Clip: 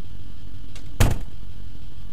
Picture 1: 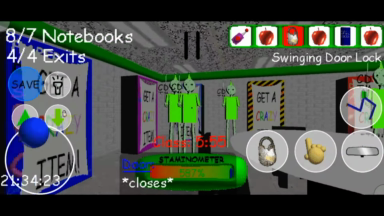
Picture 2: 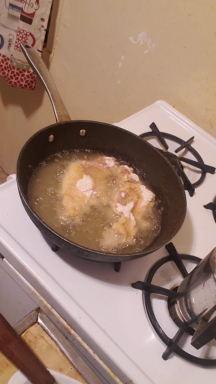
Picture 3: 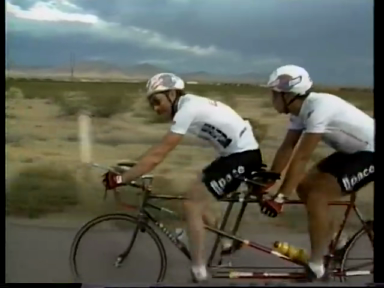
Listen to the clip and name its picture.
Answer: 1